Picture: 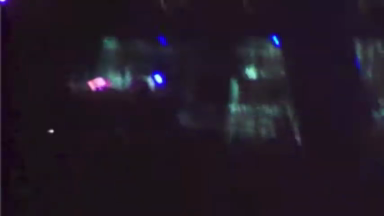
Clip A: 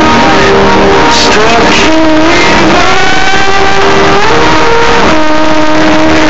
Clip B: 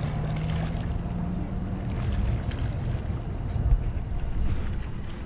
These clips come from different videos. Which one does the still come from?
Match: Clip A